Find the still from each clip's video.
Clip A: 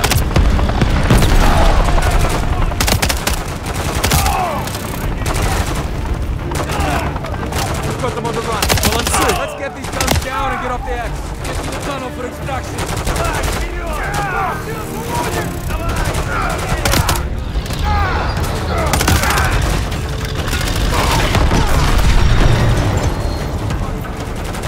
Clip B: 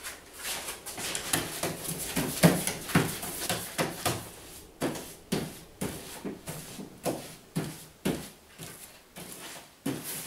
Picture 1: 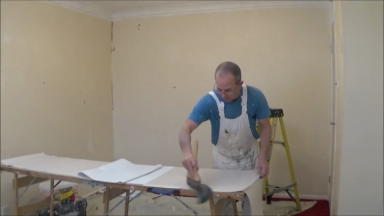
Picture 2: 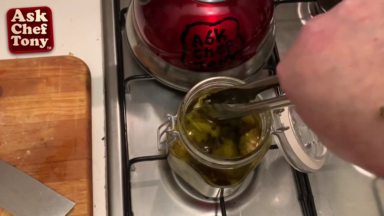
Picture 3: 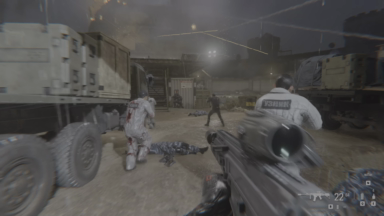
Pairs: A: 3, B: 1